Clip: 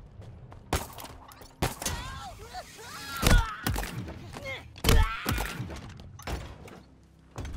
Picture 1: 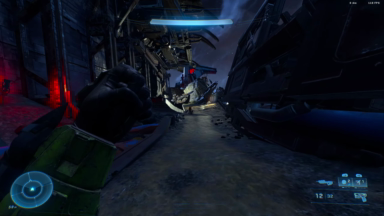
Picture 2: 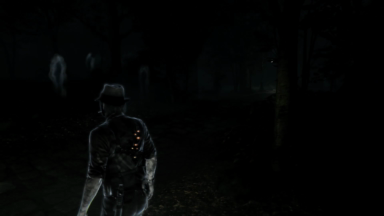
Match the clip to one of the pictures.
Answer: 1